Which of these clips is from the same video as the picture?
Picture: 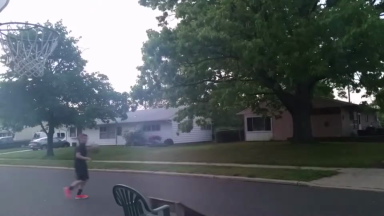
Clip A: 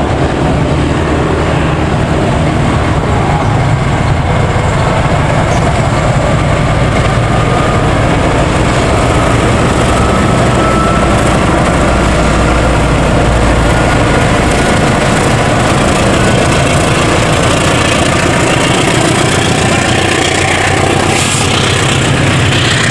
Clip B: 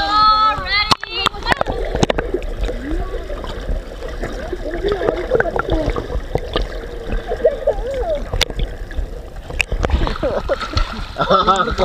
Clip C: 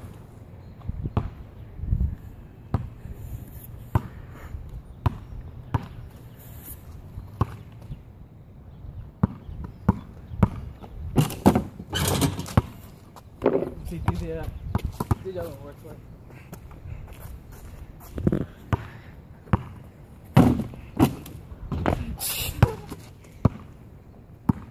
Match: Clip C